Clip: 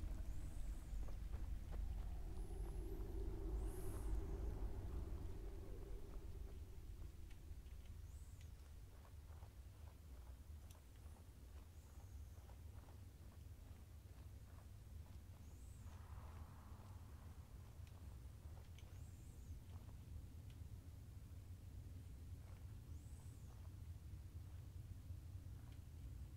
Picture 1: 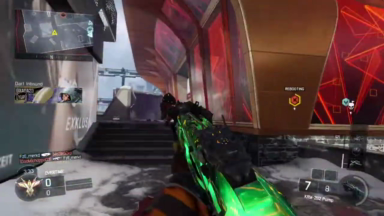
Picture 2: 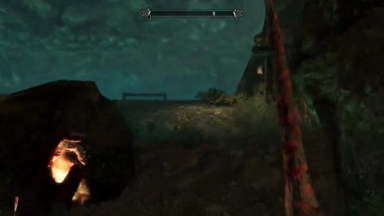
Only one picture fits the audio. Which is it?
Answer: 2